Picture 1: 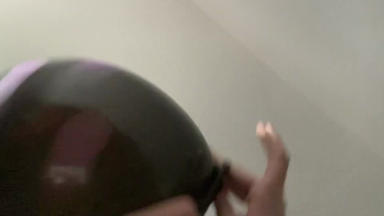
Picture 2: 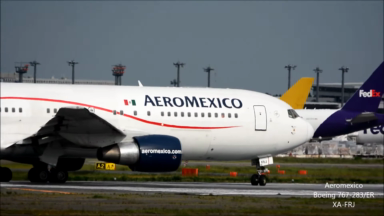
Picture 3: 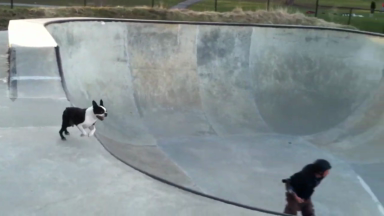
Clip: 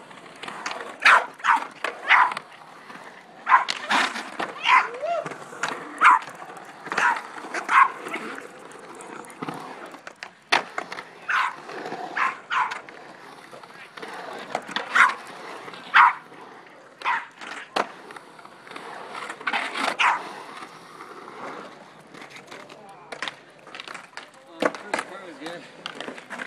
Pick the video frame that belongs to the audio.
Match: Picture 3